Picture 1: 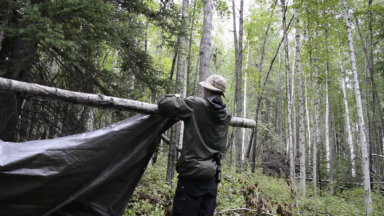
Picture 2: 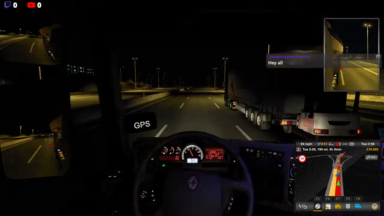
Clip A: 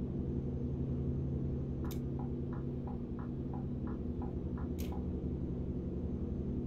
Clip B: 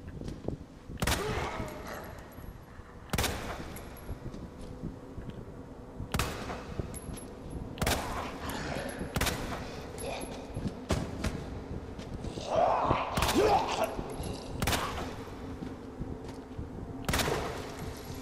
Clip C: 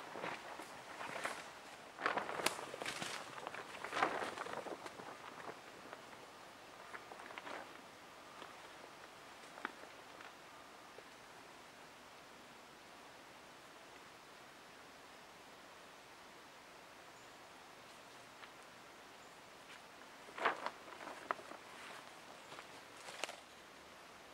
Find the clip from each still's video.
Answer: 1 C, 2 A